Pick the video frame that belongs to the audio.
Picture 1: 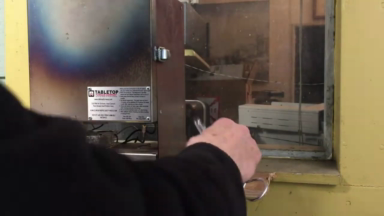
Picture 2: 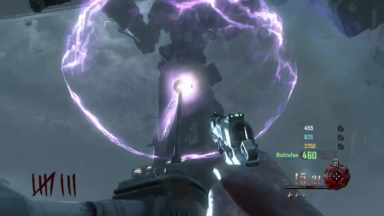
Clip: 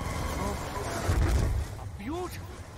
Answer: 2